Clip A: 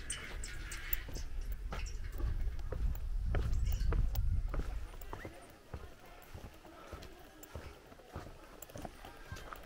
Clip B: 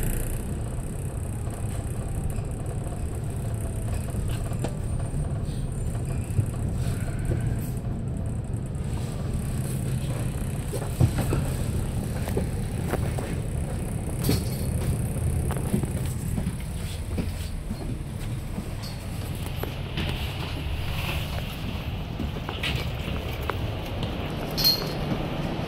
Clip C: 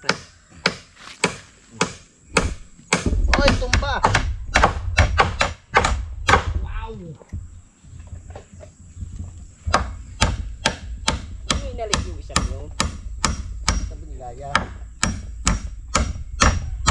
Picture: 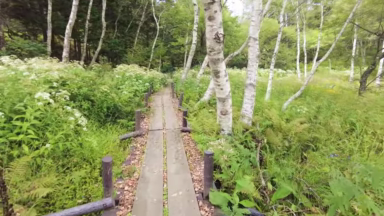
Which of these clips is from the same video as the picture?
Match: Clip A